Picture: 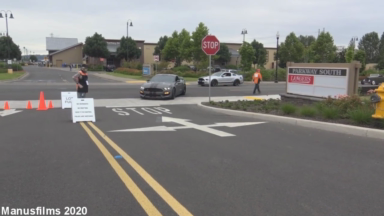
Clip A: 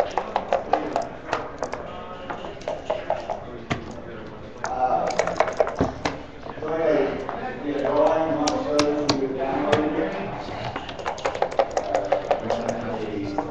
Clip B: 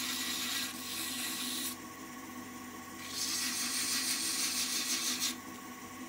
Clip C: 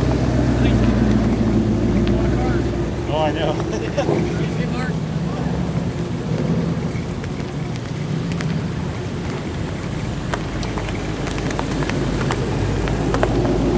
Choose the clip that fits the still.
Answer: C